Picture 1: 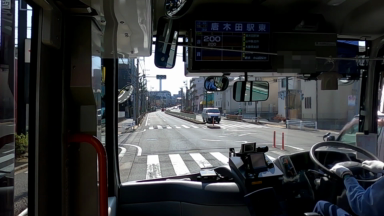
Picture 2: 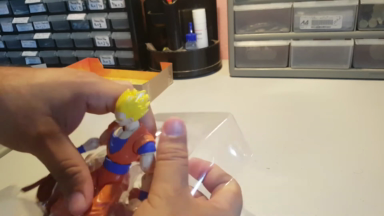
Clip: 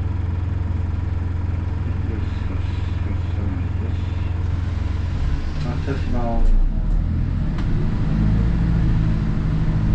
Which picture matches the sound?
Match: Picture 1